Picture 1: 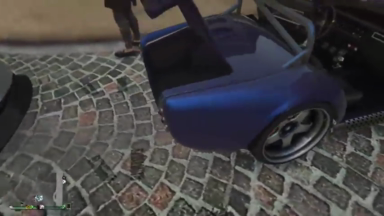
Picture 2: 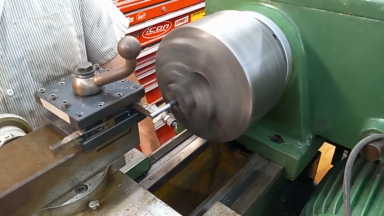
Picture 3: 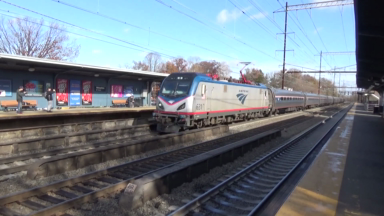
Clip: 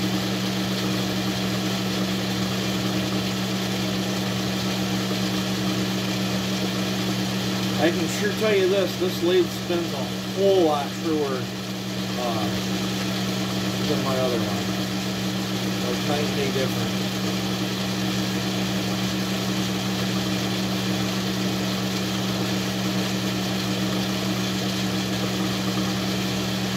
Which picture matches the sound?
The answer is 2